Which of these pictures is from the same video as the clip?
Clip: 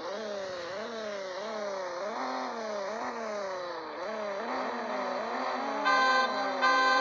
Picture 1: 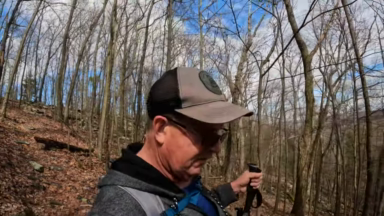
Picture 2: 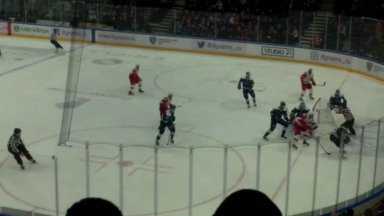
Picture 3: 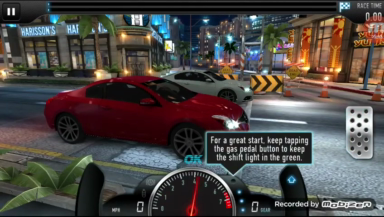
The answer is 3